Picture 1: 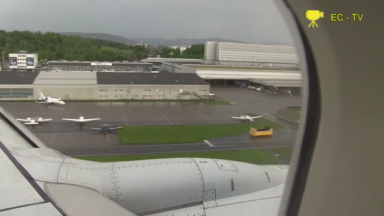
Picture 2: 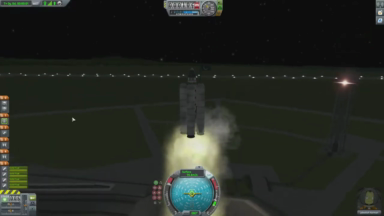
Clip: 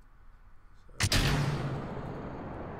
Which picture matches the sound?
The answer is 2